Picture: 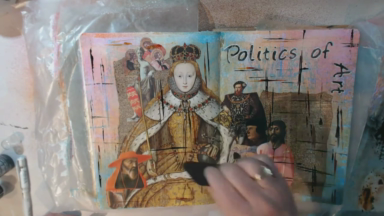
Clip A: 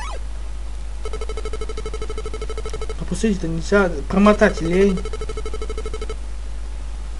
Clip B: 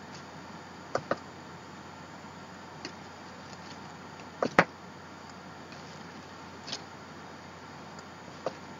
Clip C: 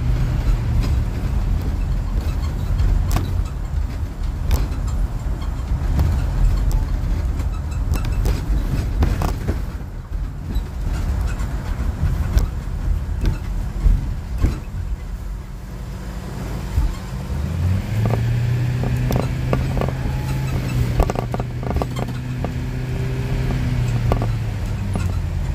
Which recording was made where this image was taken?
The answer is B